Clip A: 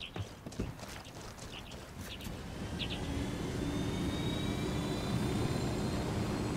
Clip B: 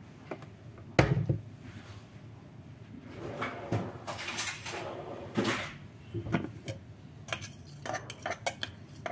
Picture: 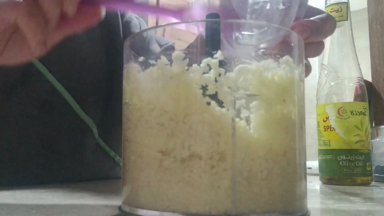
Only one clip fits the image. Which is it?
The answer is B